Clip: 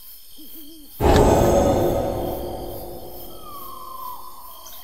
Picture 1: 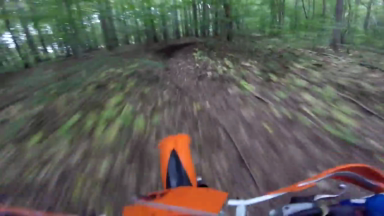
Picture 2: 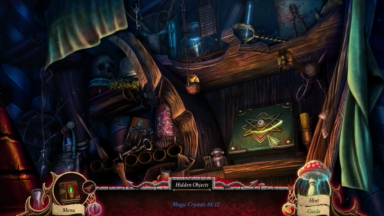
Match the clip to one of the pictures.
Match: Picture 2